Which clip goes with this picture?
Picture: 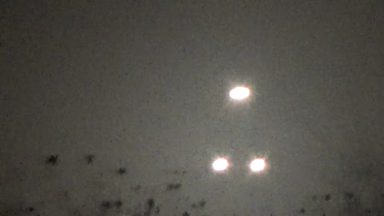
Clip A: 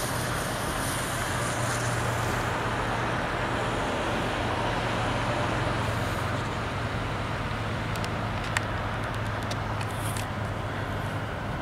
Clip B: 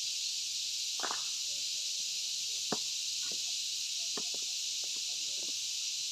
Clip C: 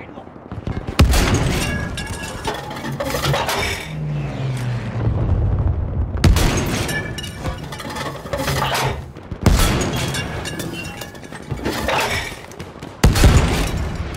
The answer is A